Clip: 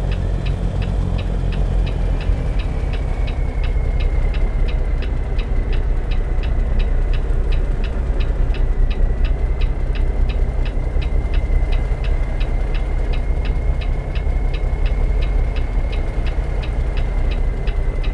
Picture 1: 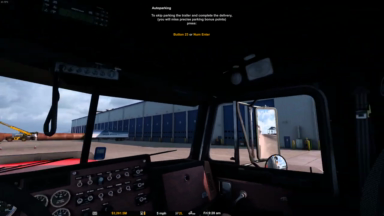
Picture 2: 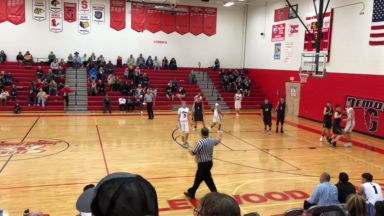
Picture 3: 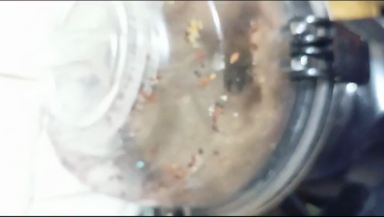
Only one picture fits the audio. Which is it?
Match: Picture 1